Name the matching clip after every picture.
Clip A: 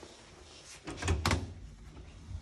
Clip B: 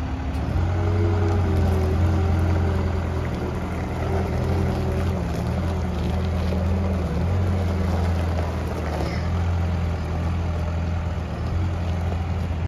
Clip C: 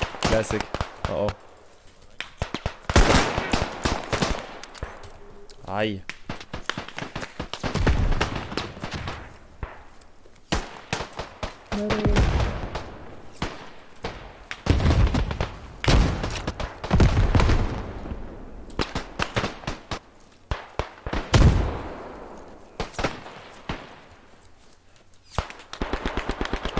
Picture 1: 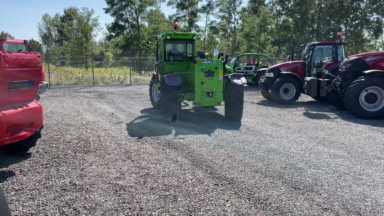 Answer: B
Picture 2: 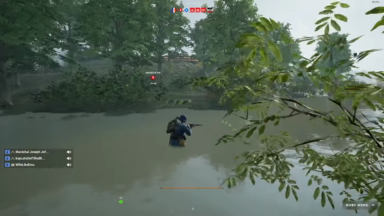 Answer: C